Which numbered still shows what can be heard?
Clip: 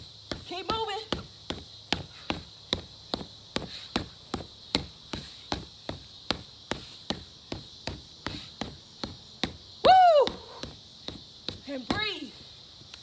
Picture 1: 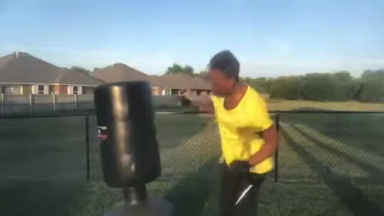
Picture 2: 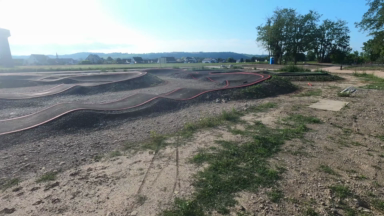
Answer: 1